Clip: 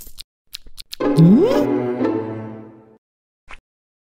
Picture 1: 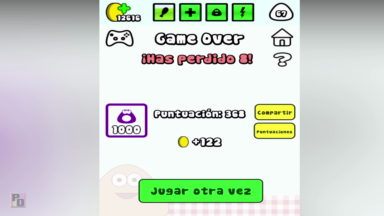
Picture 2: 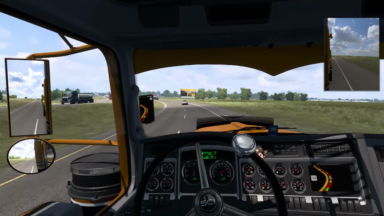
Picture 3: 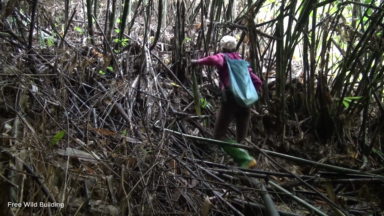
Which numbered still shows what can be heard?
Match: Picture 1